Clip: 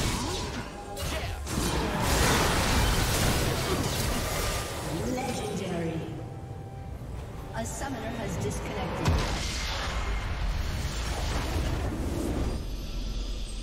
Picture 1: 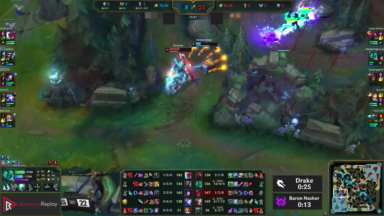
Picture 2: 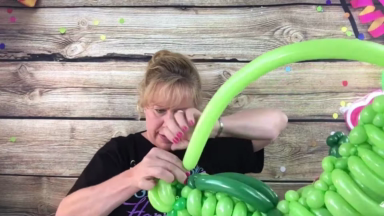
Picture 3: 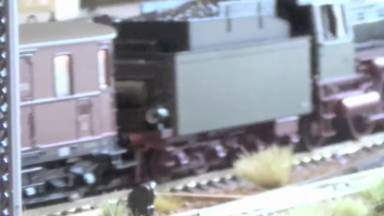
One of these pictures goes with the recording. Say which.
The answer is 1